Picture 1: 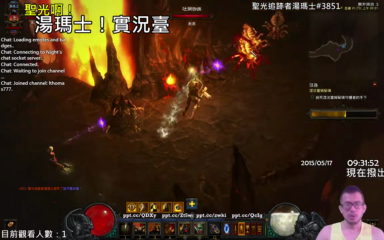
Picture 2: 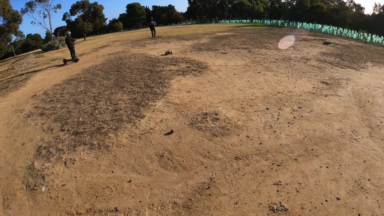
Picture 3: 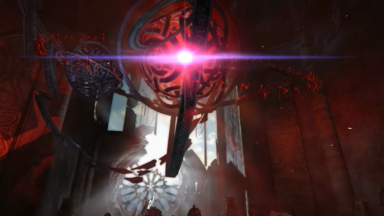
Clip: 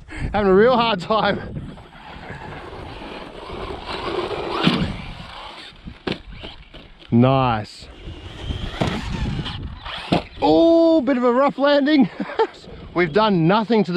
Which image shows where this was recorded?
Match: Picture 2